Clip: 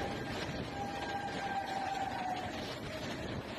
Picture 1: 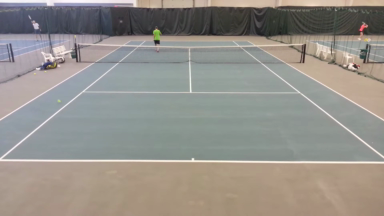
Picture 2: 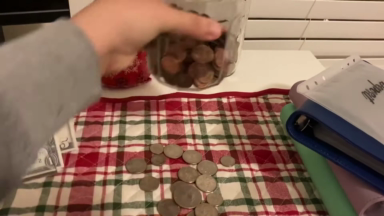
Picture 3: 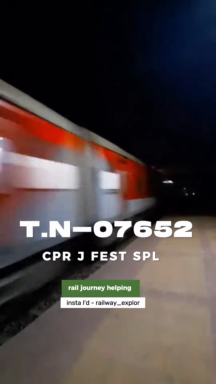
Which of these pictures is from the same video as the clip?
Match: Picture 3